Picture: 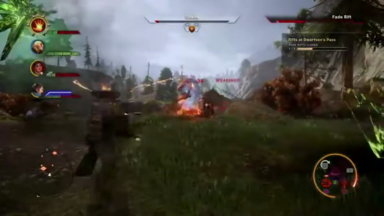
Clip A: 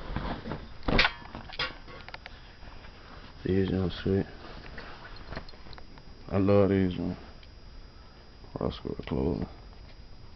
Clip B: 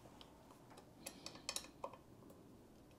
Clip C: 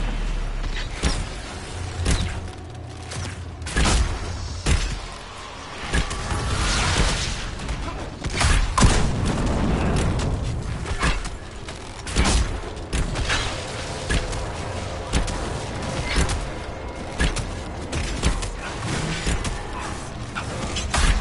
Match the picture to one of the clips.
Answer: C